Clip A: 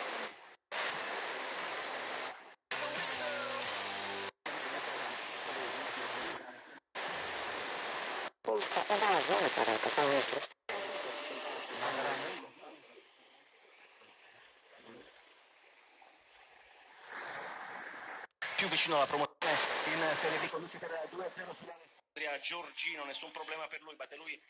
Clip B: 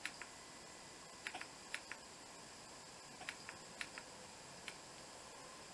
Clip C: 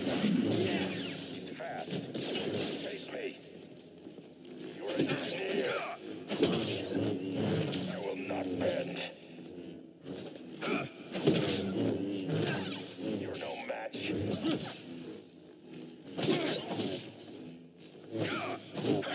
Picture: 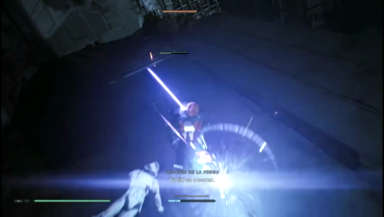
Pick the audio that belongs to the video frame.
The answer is C